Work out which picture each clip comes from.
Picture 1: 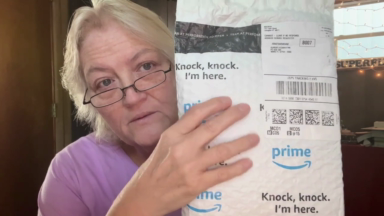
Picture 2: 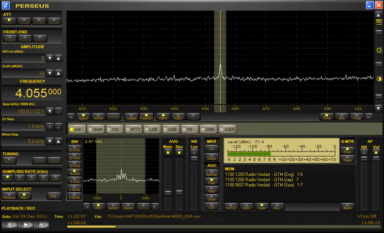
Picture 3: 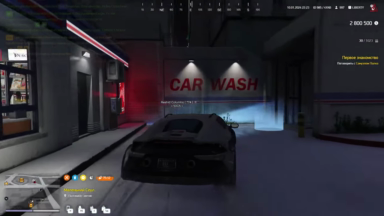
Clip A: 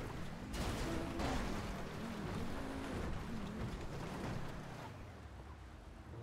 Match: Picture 3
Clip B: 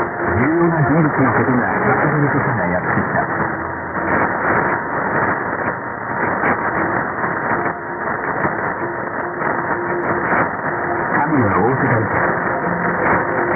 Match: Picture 2